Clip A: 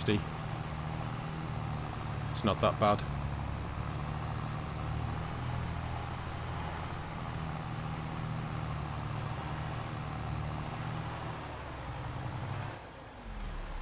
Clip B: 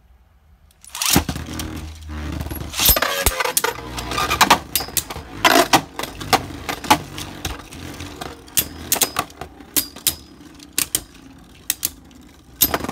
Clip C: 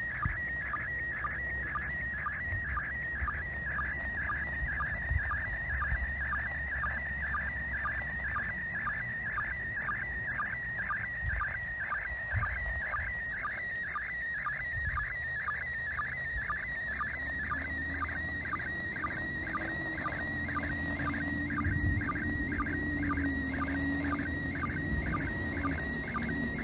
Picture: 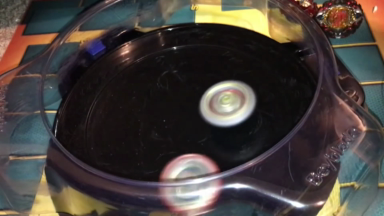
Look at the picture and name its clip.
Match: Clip B